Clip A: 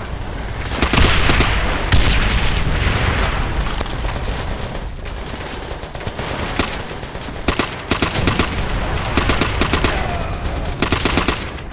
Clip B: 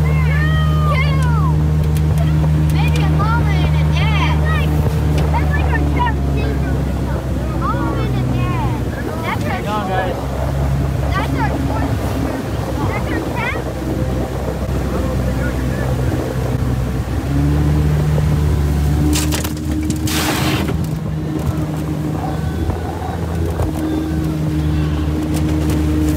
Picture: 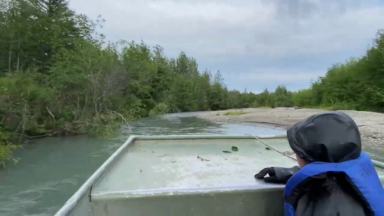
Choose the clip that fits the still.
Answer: B